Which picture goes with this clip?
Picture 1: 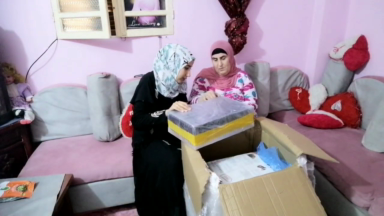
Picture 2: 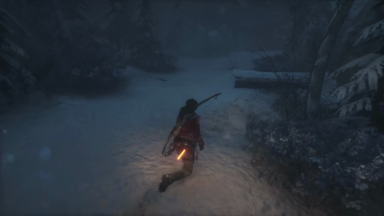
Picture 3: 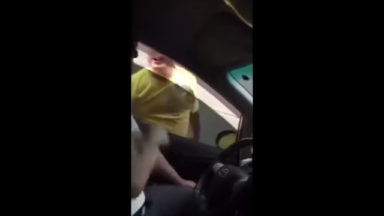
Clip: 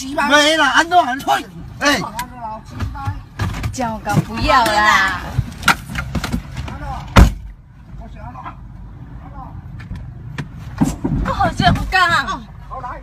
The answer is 3